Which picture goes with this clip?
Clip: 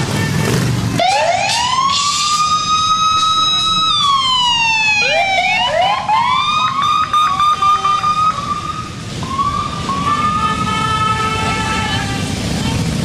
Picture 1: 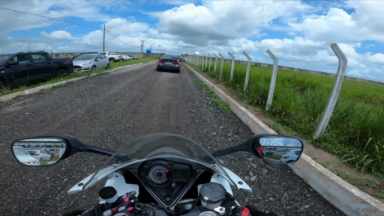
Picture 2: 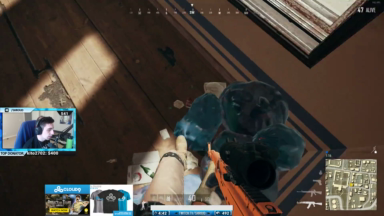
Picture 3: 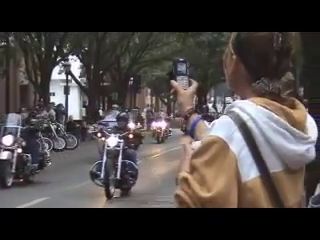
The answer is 3